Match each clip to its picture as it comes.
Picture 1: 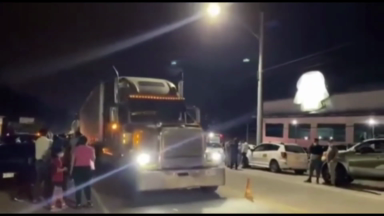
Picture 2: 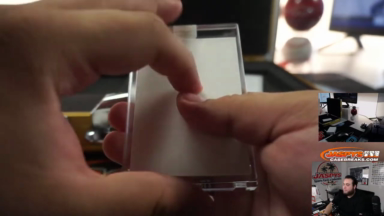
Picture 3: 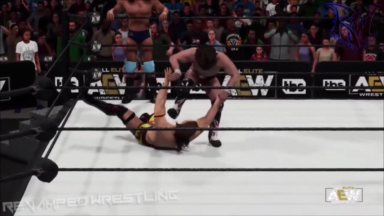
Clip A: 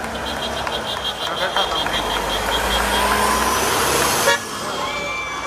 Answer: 1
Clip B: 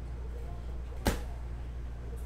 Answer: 2